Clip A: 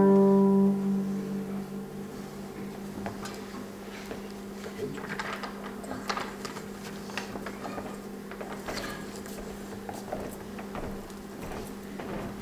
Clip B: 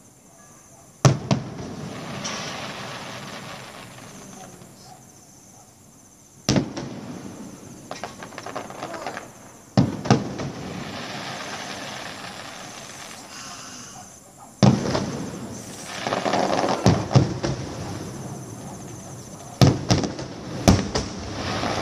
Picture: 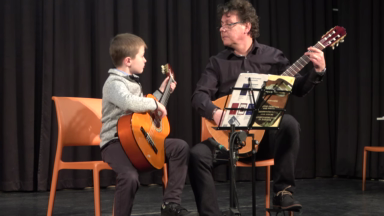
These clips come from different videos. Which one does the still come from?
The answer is A